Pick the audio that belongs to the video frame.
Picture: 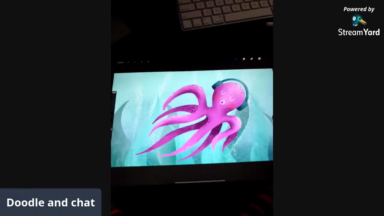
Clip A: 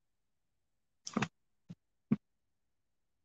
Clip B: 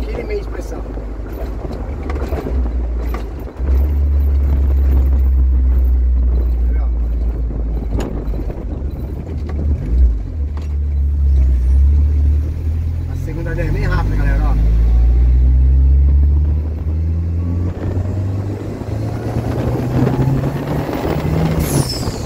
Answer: A